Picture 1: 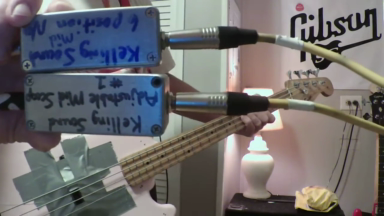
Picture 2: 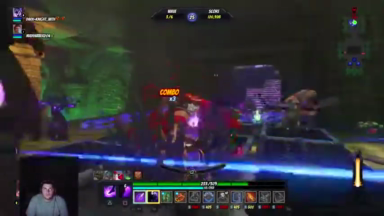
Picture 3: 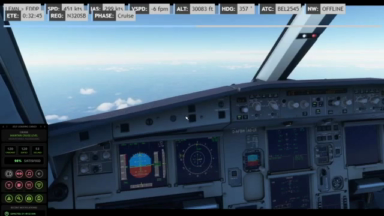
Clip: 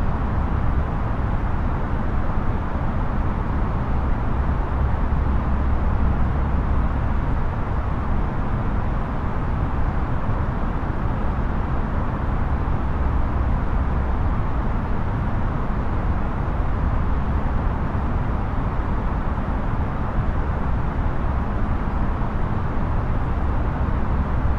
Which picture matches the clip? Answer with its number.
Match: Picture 3